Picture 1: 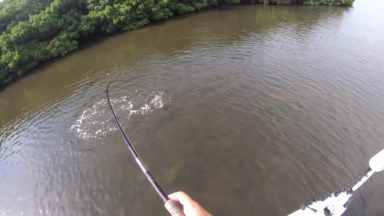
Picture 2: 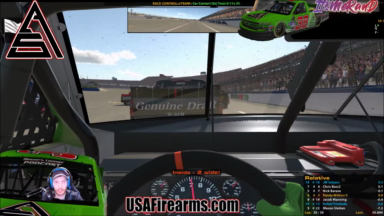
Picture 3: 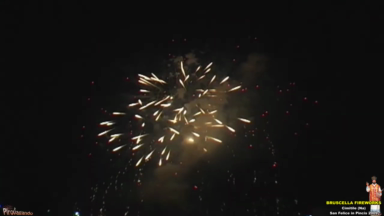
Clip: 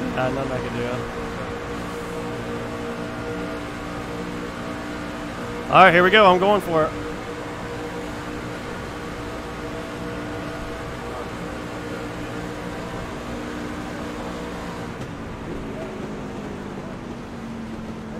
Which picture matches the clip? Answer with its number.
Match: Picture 2